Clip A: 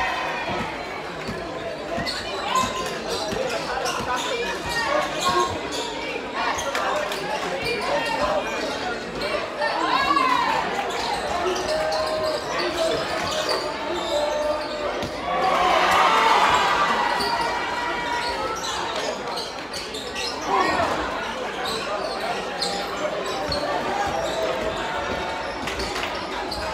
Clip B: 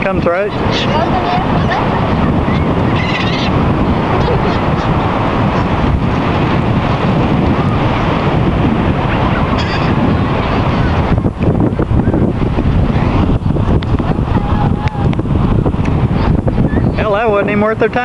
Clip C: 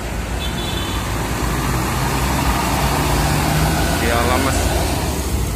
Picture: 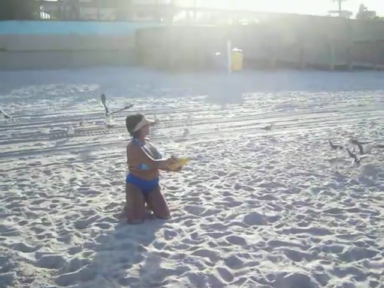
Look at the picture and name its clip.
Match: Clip B